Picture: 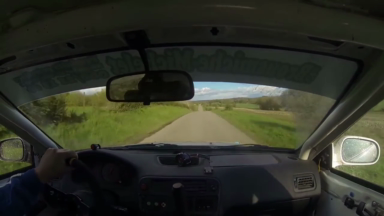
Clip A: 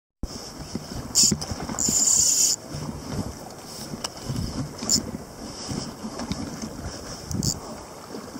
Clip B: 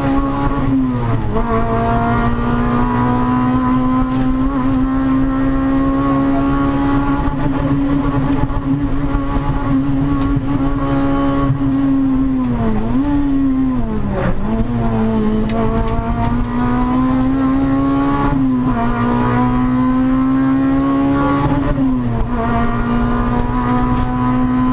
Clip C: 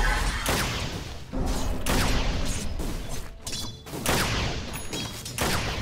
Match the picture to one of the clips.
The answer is B